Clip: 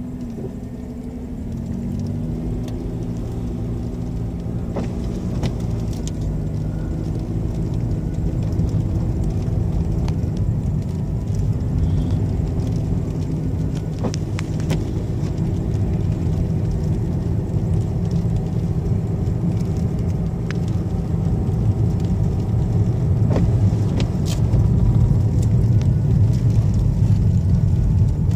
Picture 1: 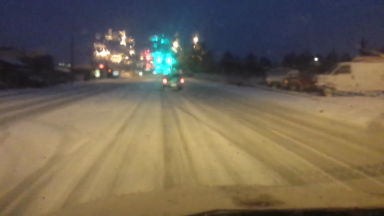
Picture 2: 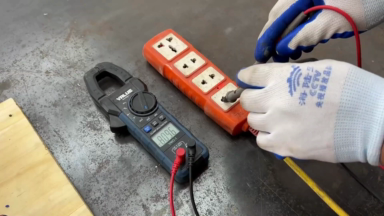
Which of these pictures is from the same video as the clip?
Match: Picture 1